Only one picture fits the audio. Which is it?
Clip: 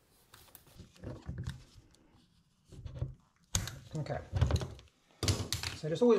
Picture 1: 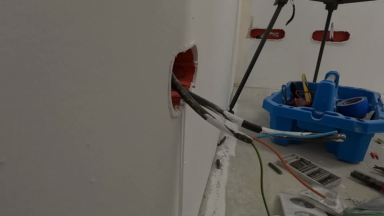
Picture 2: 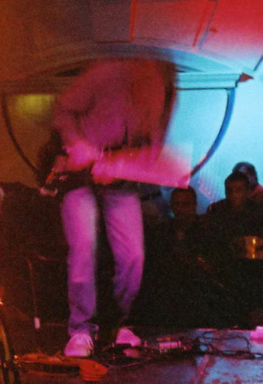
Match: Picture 1